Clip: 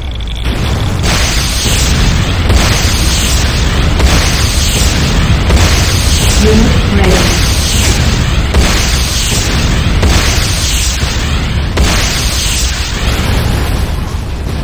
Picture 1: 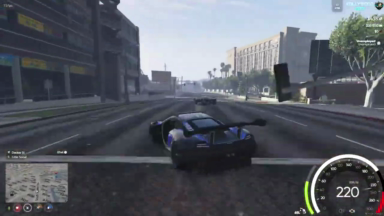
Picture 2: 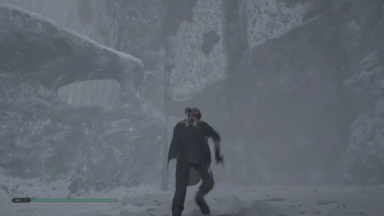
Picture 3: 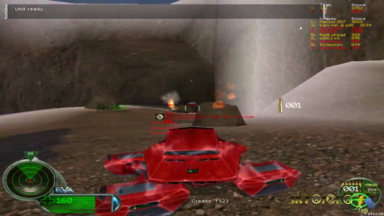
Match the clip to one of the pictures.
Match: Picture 3